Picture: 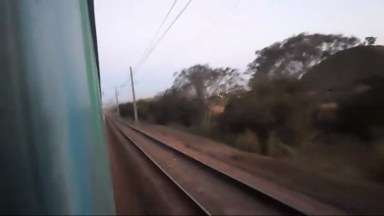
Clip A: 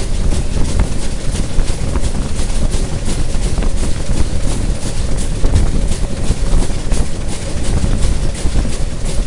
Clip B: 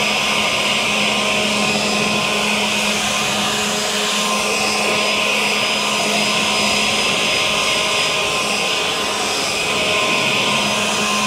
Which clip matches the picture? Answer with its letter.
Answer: A